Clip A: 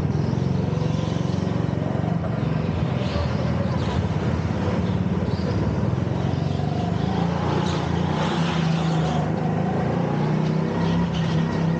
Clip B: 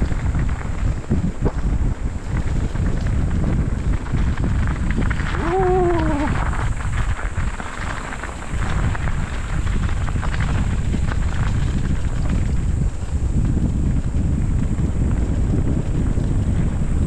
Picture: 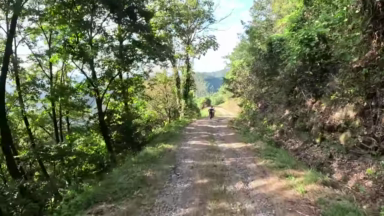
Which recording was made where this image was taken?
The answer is B